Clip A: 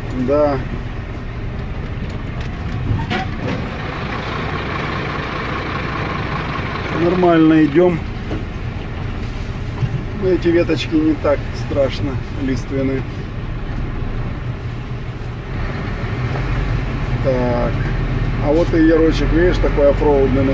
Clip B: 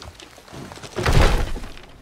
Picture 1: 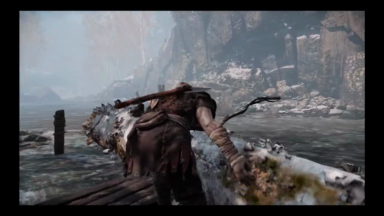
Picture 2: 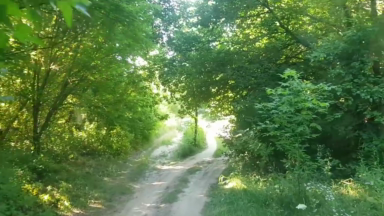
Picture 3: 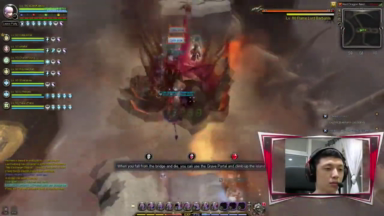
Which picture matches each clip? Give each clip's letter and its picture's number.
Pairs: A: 2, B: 1